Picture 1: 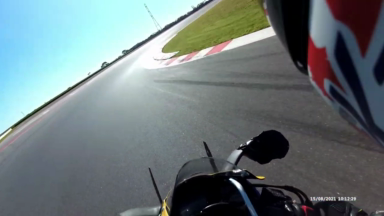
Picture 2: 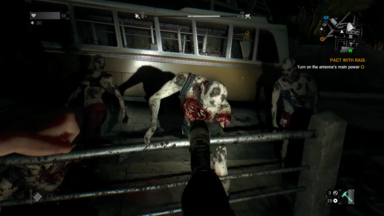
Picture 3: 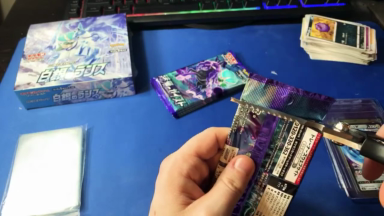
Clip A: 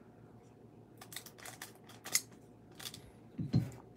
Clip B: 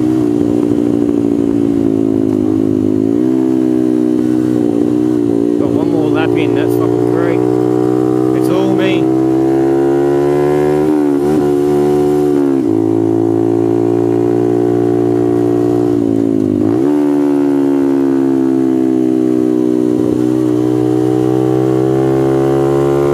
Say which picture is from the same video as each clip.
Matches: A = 3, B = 1